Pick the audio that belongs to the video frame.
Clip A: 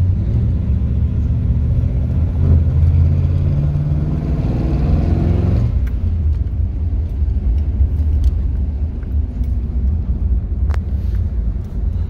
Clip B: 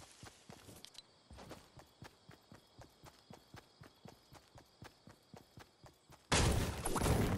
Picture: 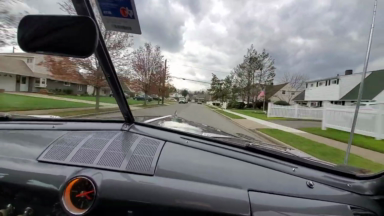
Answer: A